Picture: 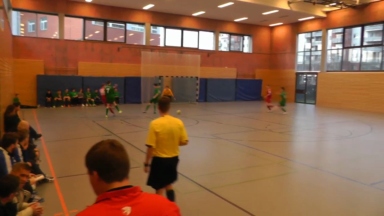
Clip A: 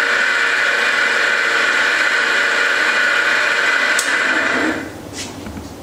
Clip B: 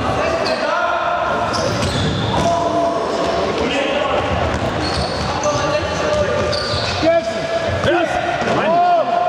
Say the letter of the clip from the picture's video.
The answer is B